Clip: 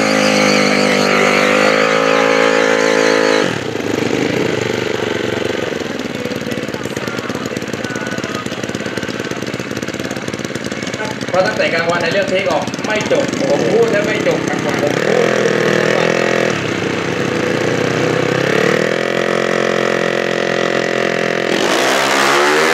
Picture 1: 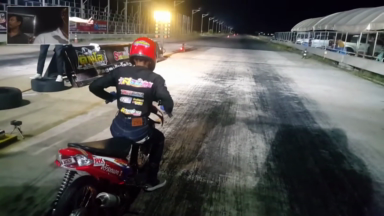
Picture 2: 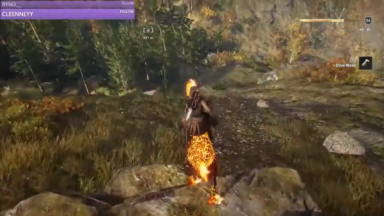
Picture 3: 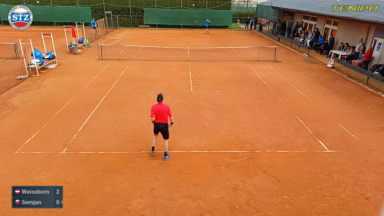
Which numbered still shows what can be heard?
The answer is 1